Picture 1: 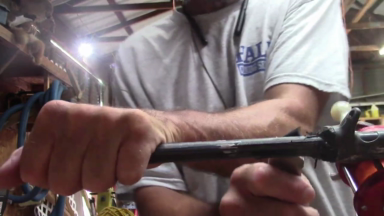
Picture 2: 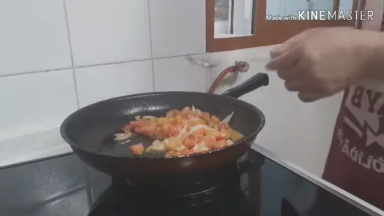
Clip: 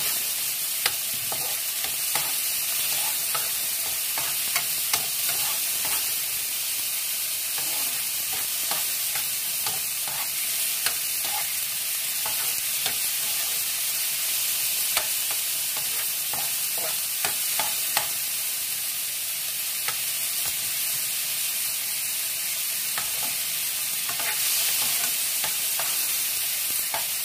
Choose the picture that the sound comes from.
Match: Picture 2